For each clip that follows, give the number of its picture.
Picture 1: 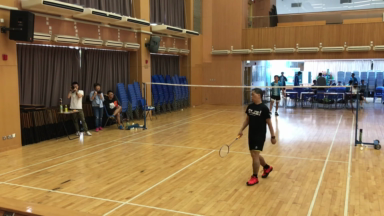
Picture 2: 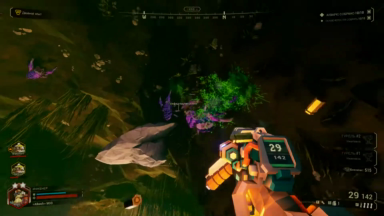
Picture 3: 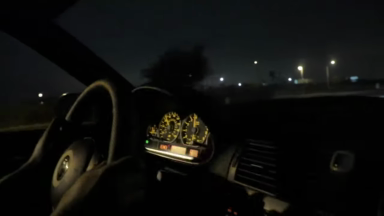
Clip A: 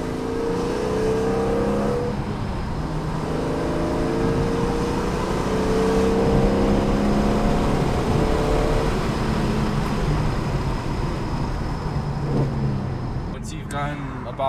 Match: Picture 3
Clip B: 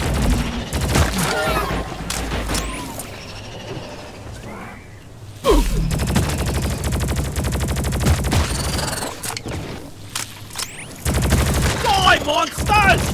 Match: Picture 2